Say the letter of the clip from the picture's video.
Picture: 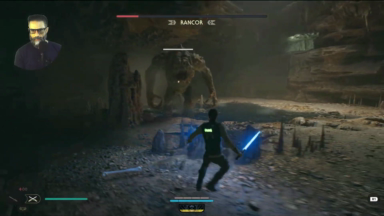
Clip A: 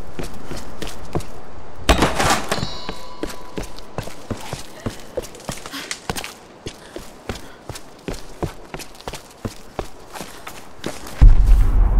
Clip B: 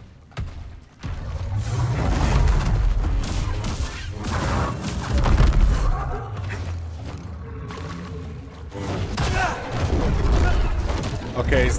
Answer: B